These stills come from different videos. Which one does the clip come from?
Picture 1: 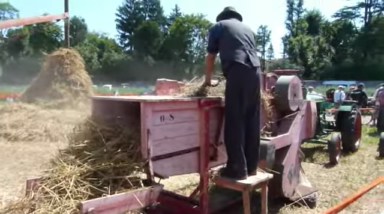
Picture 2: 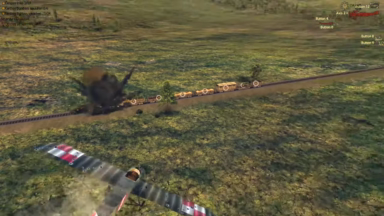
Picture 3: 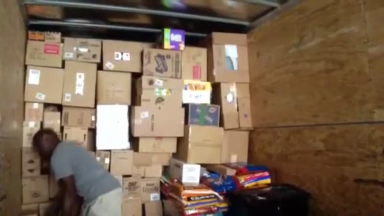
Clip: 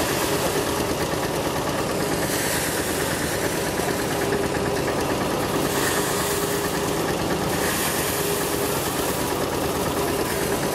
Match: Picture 1